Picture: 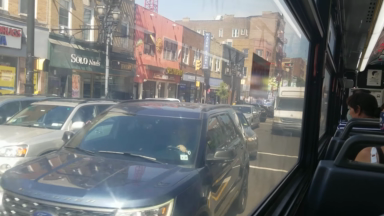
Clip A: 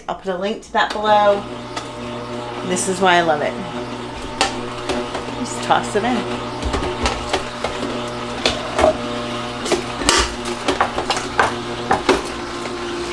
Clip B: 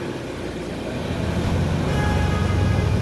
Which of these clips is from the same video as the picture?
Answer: B